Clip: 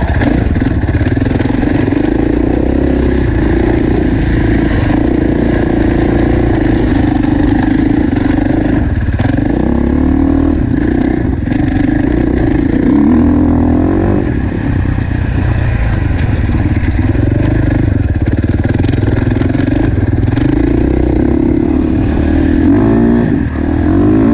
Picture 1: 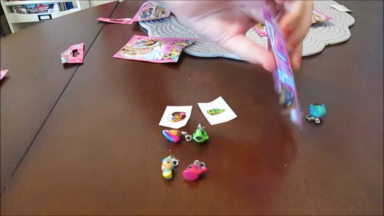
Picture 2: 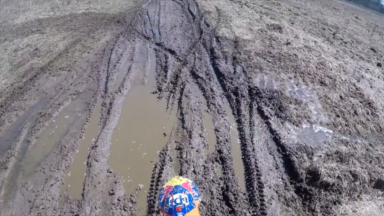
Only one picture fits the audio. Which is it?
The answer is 2